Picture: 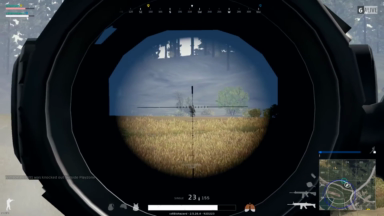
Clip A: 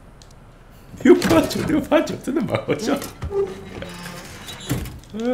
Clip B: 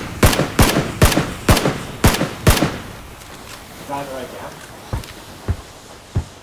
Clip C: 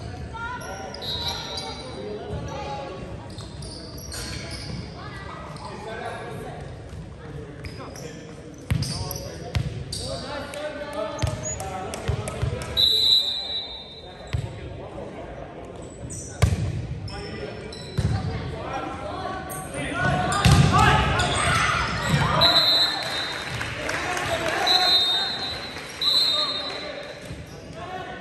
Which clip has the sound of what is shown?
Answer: B